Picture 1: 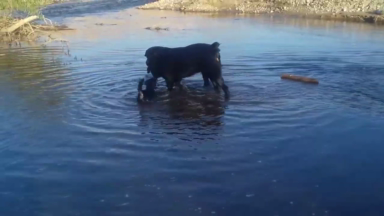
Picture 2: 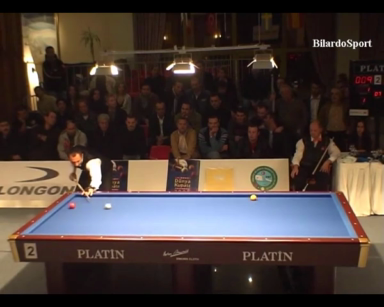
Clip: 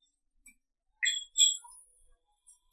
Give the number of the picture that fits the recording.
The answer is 2